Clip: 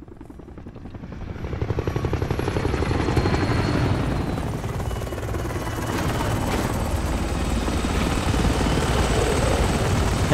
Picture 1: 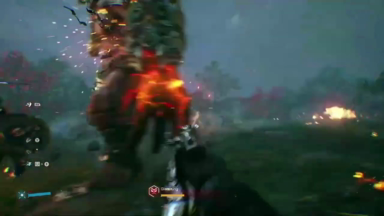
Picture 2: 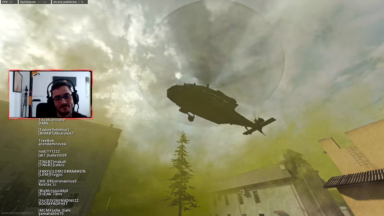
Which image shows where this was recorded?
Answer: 2